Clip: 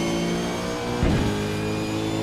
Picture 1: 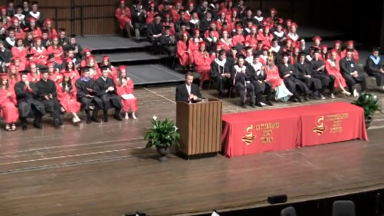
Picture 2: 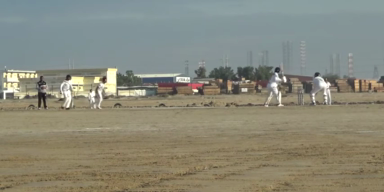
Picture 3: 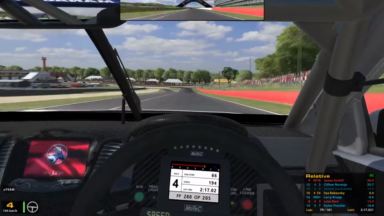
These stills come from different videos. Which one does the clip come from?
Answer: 3